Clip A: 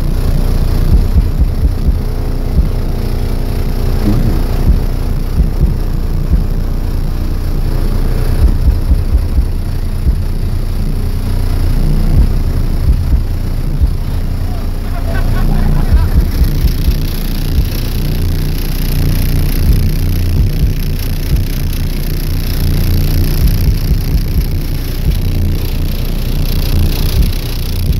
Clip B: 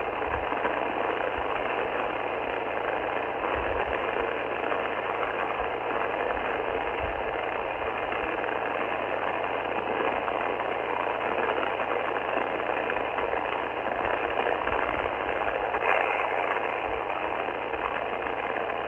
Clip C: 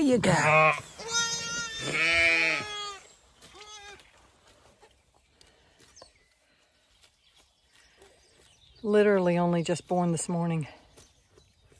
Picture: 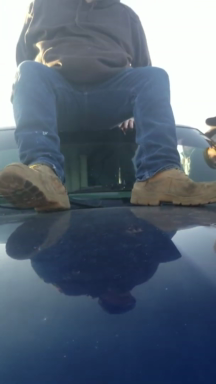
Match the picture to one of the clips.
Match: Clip A